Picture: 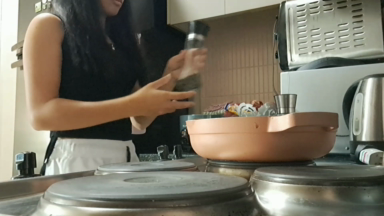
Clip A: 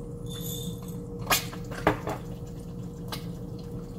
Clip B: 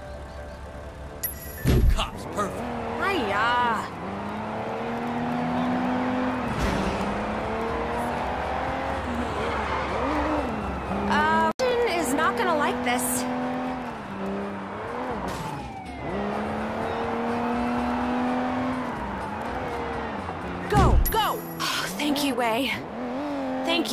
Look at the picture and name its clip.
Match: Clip A